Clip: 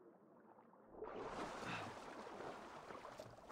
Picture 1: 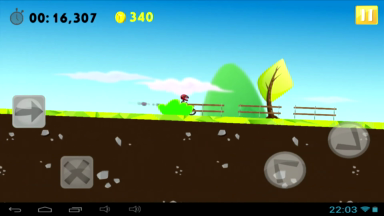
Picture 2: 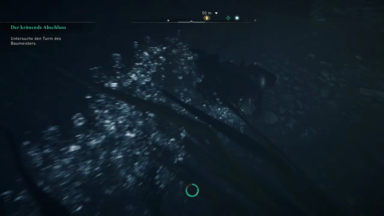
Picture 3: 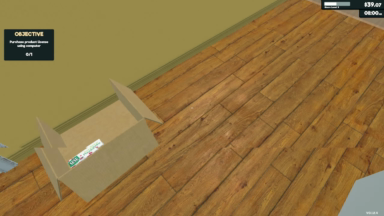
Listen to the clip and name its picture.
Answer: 2